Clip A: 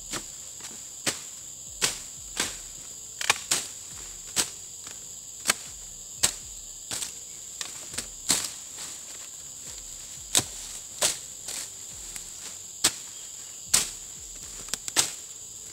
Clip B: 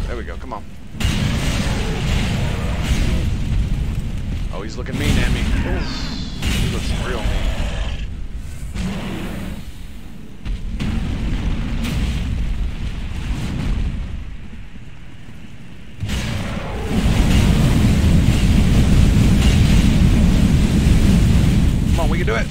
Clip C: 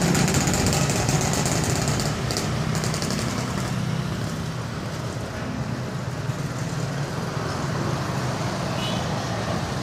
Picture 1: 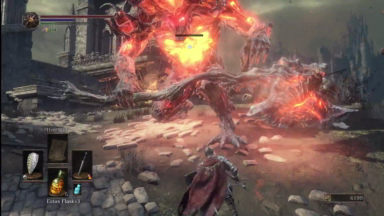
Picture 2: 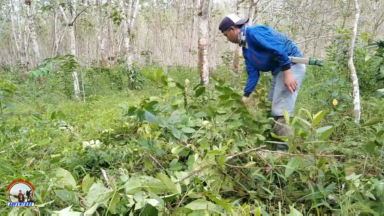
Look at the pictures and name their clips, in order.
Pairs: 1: B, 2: A